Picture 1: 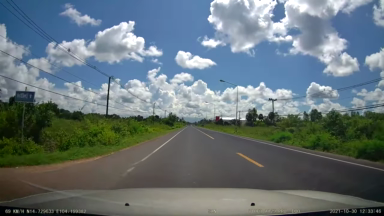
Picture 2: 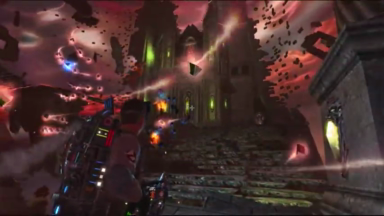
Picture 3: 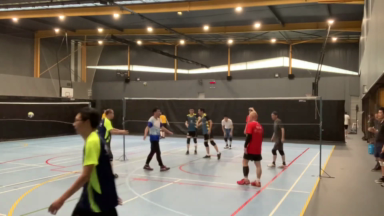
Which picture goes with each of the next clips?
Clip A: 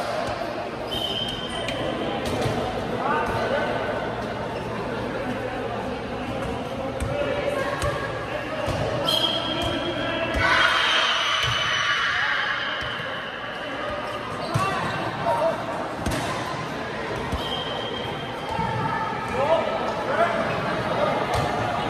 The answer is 3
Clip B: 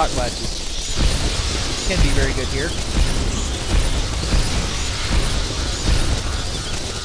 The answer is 2